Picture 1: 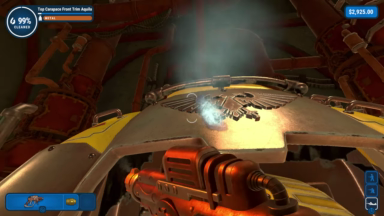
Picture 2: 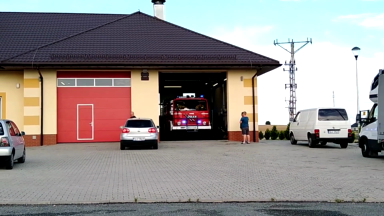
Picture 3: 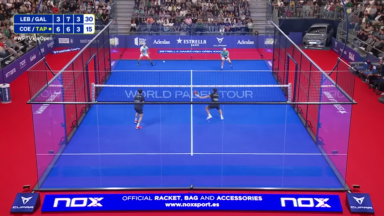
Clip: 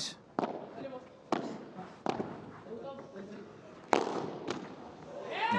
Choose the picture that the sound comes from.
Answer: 3